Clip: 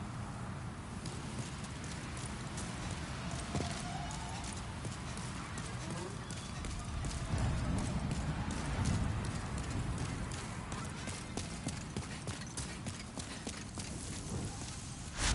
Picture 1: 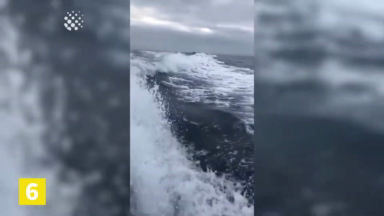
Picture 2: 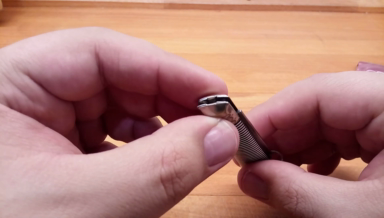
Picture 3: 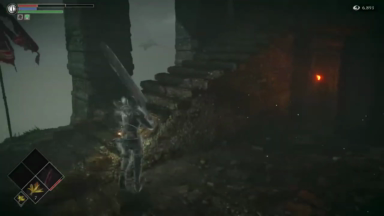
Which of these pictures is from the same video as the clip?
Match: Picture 3